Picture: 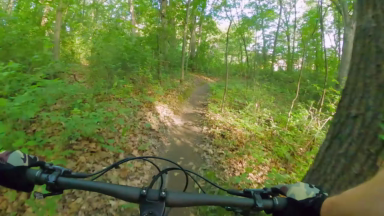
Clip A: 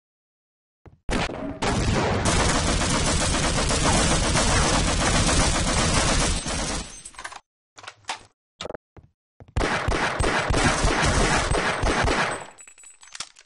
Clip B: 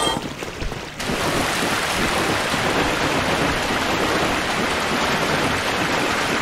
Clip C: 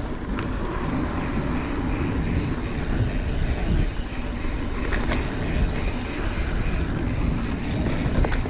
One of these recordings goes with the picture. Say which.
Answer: C